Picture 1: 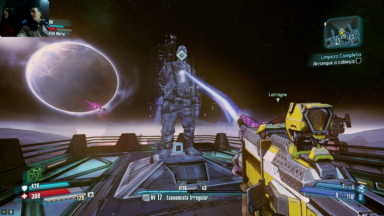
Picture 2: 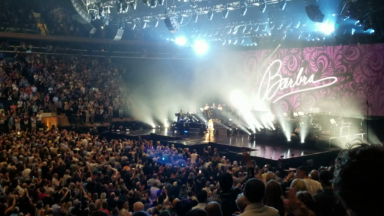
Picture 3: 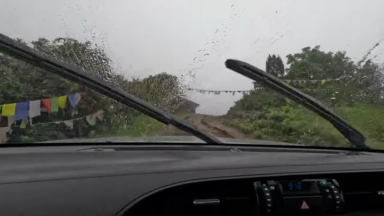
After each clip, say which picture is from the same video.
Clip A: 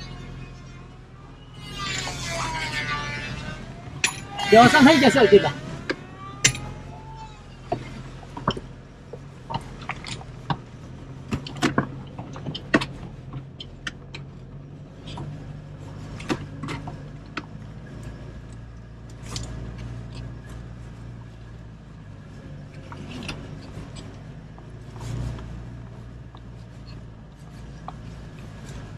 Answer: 3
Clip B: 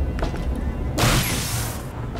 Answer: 1